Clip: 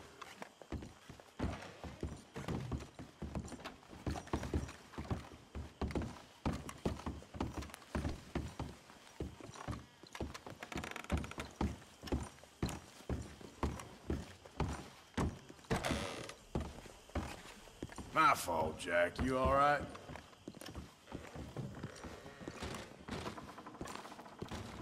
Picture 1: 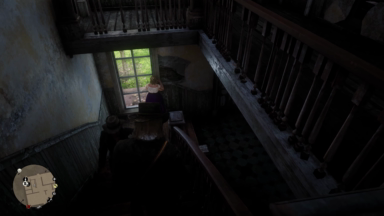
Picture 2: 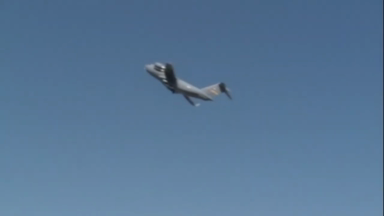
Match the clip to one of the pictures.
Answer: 1